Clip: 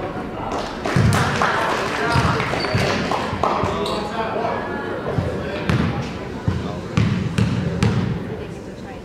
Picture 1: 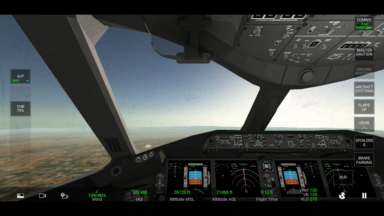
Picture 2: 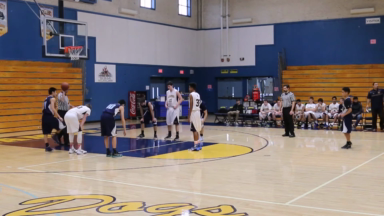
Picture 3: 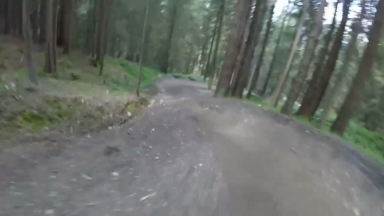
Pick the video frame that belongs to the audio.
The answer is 2